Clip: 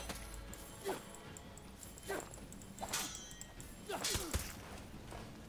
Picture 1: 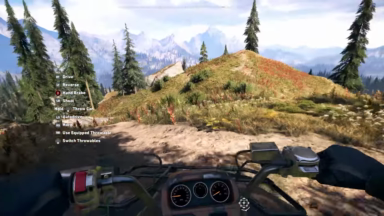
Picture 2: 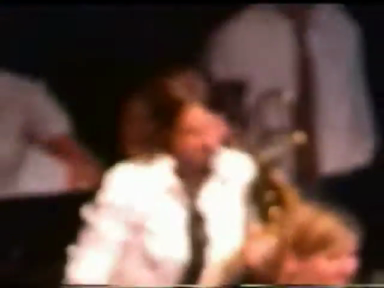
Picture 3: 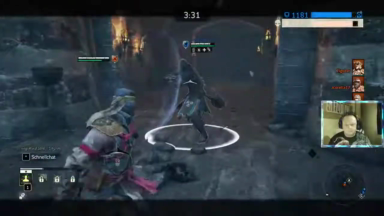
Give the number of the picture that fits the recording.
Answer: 3